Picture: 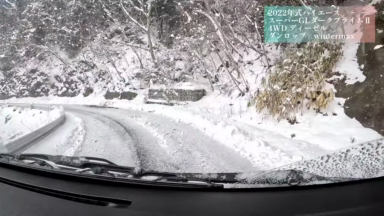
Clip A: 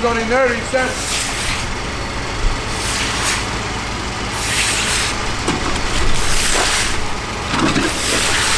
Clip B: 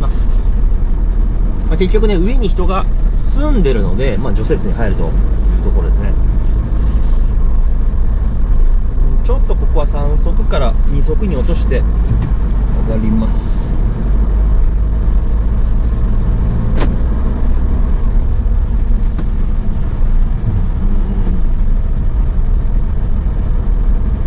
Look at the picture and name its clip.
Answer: B